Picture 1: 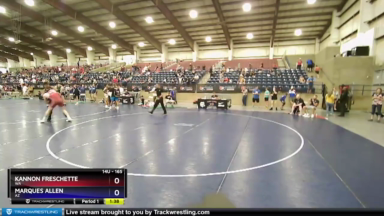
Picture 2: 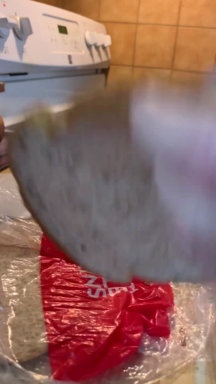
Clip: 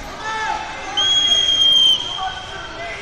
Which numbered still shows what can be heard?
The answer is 1